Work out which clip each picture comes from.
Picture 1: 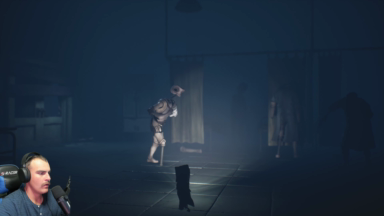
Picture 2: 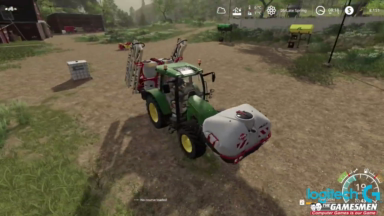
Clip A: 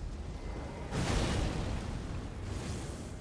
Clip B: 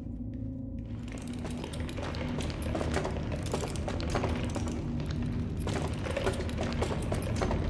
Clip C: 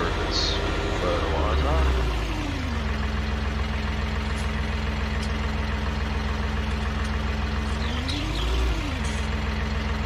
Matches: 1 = B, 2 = C